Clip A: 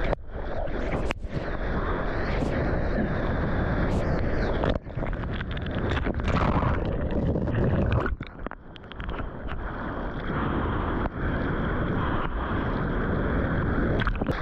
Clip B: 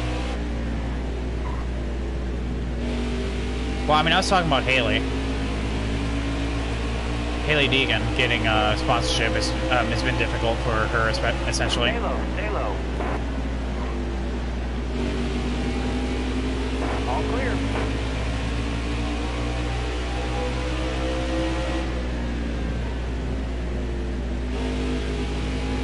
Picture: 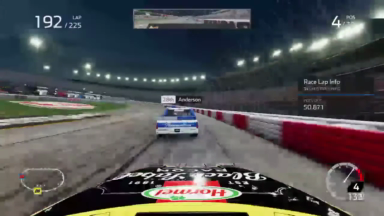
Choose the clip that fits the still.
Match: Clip B